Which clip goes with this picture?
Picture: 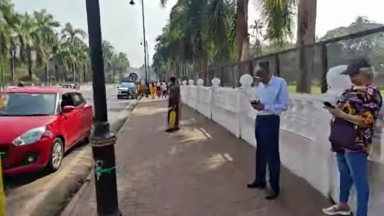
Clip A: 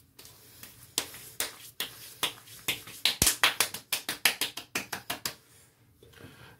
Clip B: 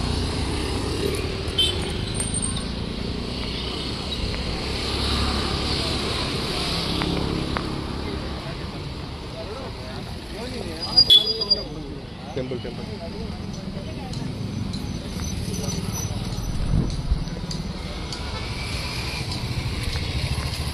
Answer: B